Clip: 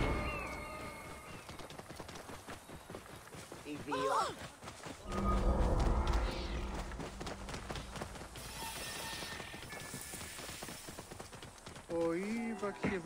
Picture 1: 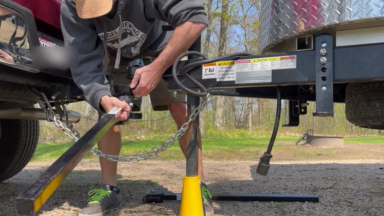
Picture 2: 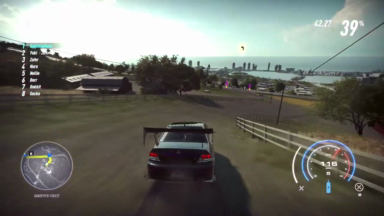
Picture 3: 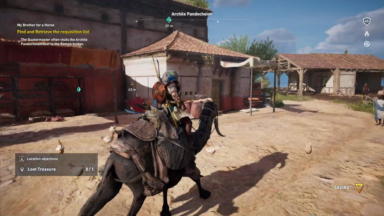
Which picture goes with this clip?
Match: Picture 3